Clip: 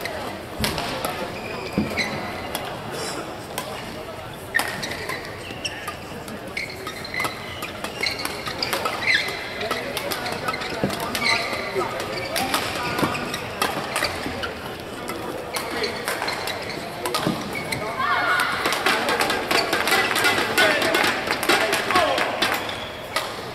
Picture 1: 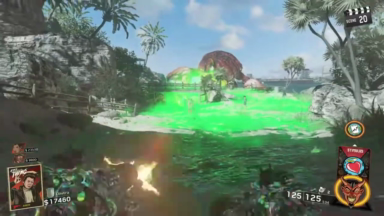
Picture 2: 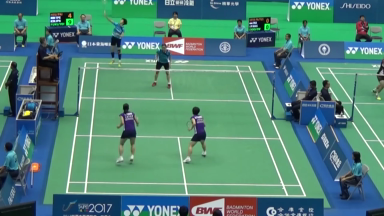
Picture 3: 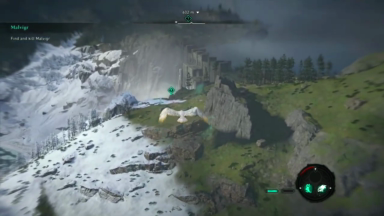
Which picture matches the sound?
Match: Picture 2